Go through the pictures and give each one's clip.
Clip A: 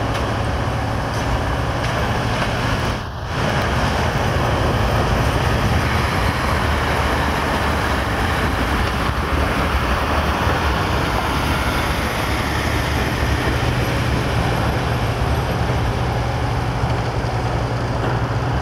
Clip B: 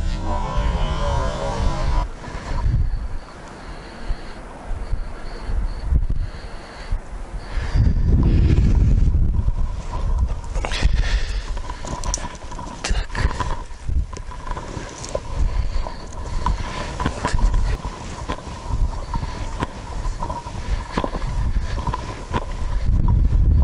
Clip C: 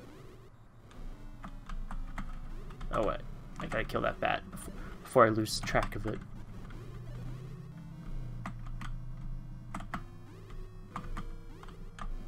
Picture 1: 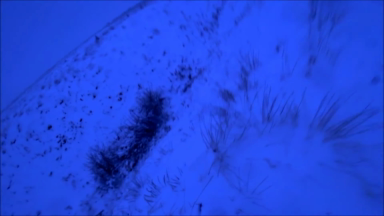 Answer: B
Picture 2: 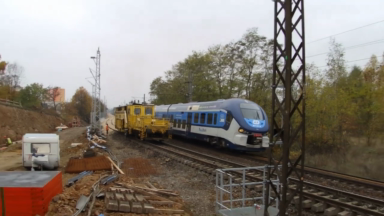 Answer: A